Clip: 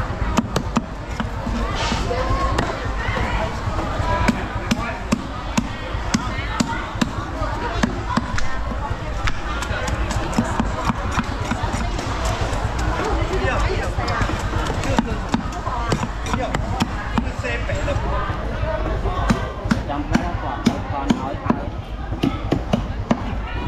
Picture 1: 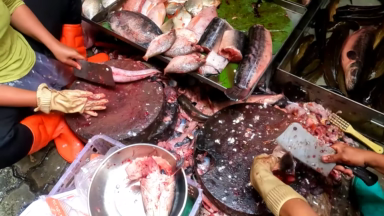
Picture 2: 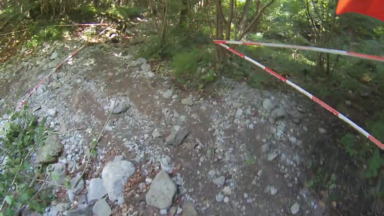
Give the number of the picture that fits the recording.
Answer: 1